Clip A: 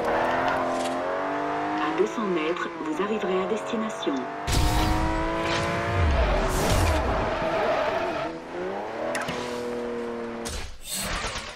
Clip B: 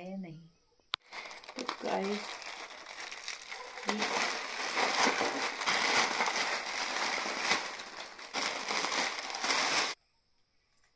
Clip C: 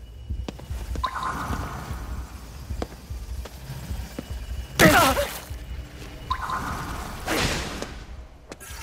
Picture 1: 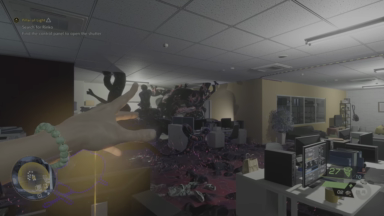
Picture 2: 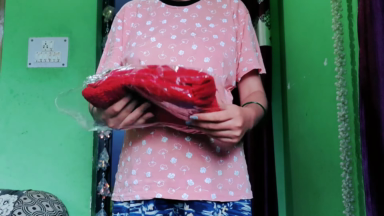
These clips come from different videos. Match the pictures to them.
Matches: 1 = C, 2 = B